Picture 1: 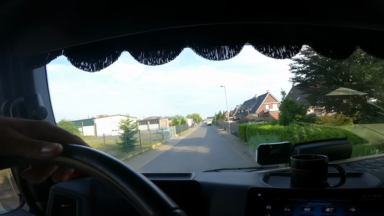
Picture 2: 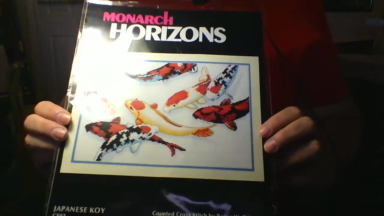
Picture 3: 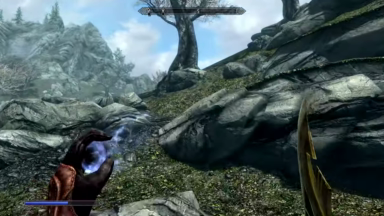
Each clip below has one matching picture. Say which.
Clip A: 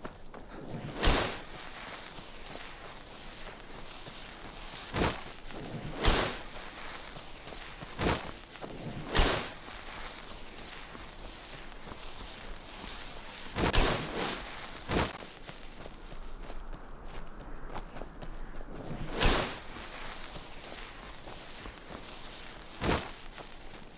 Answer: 3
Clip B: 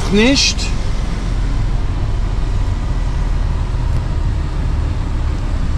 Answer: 1